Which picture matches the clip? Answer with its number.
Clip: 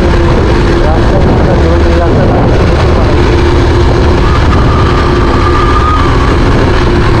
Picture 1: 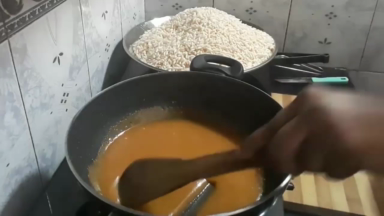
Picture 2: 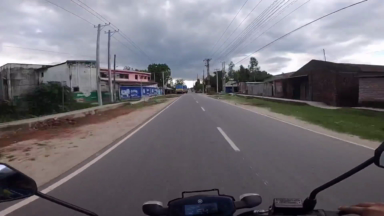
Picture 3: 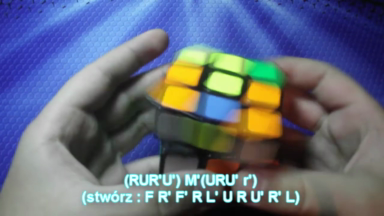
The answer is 2